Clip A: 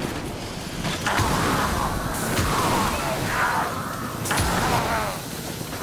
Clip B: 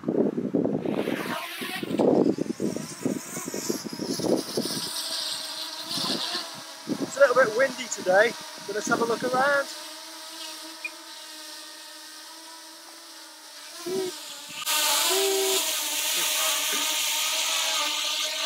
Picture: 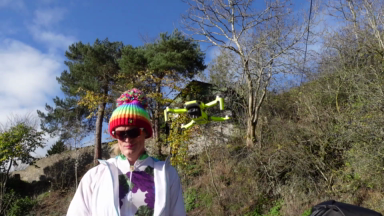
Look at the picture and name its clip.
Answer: B